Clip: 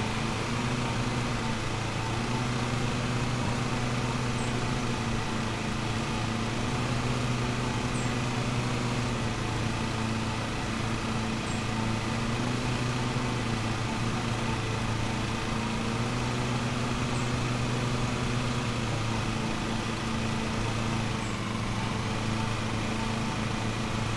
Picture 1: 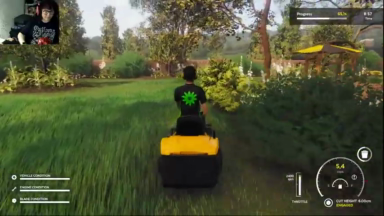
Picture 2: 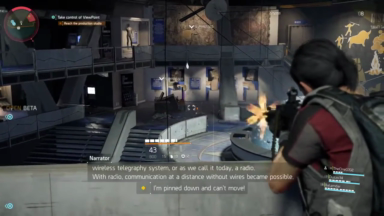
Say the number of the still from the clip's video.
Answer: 1